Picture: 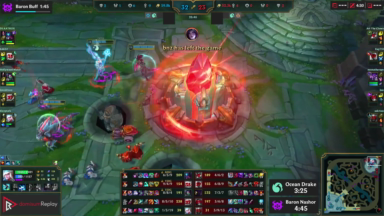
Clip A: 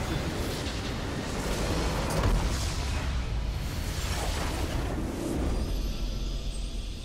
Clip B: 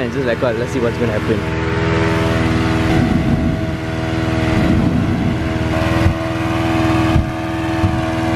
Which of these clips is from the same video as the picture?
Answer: A